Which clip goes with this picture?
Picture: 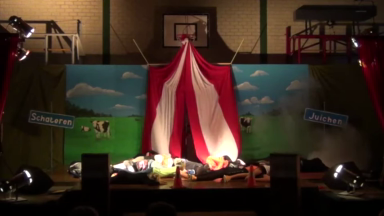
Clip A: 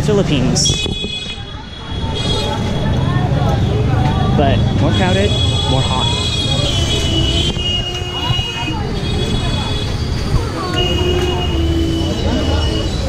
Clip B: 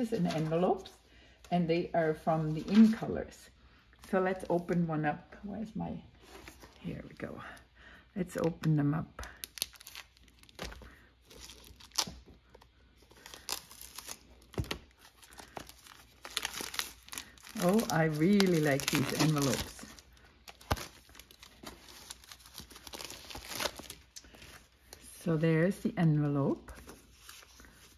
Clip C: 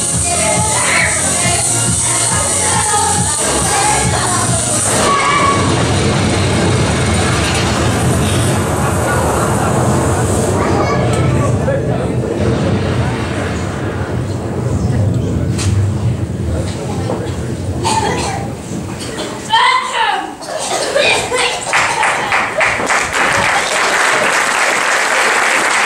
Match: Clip C